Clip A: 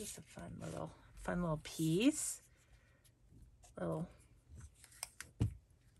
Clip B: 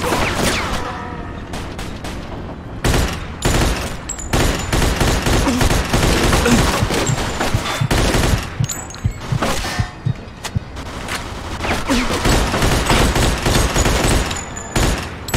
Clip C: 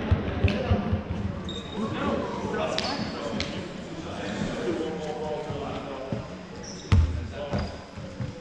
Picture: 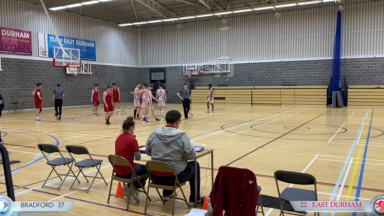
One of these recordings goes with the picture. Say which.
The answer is C